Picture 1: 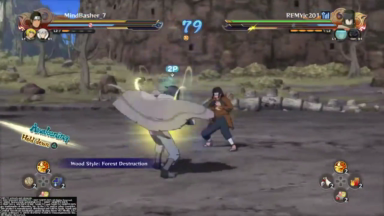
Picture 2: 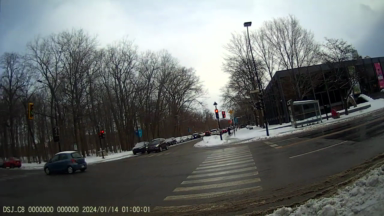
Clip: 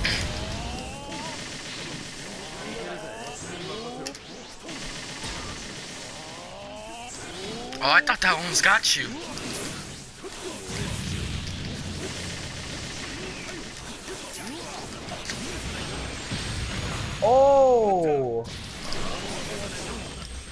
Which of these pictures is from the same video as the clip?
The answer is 1